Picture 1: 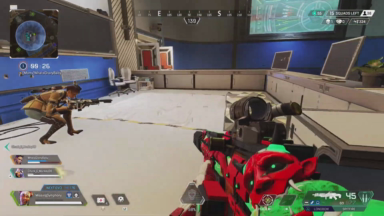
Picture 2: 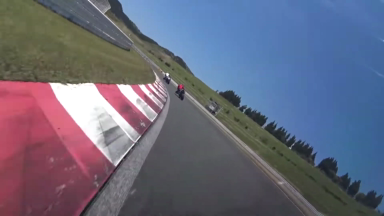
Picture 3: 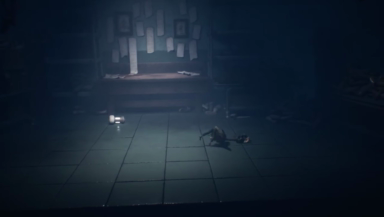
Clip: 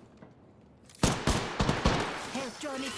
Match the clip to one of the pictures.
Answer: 1